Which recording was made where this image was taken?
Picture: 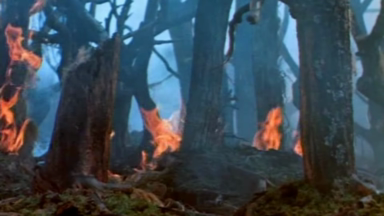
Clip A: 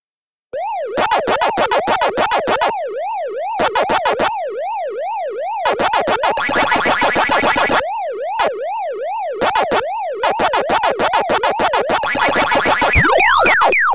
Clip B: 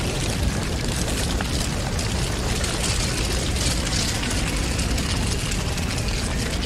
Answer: B